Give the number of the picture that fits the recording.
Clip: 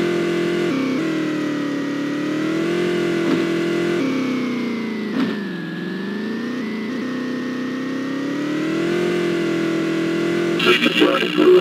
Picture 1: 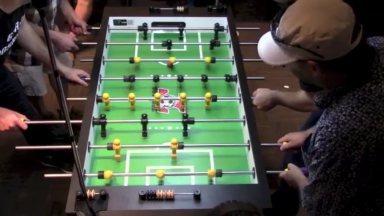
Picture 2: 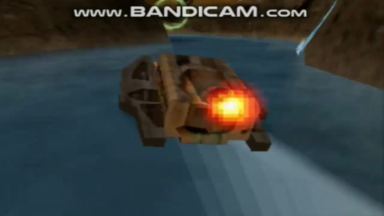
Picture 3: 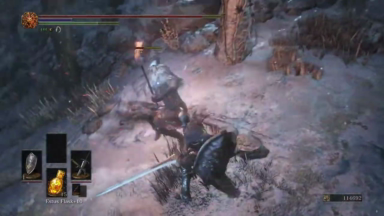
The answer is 2